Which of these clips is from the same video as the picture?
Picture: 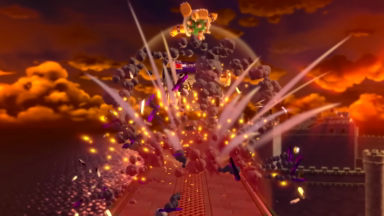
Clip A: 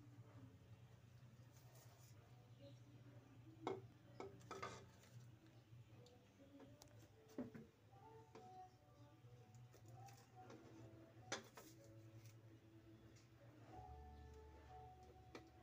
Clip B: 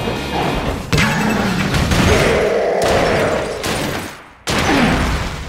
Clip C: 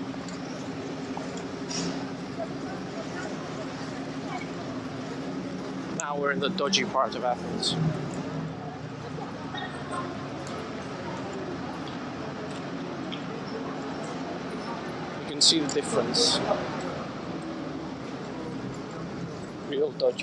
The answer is B